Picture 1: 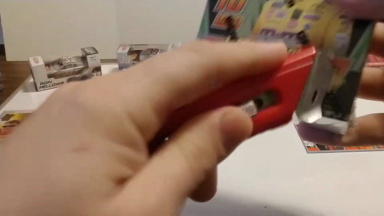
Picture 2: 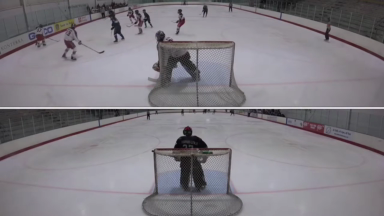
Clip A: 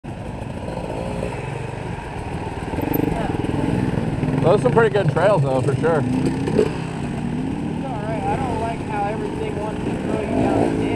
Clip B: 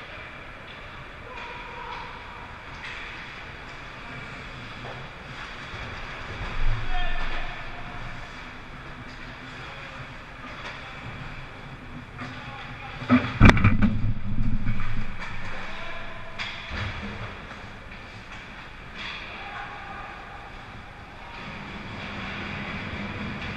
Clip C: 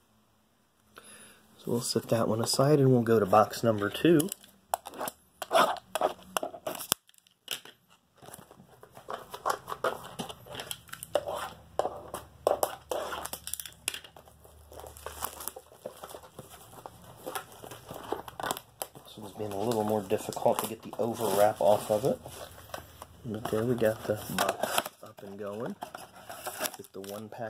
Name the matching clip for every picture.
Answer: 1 C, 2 B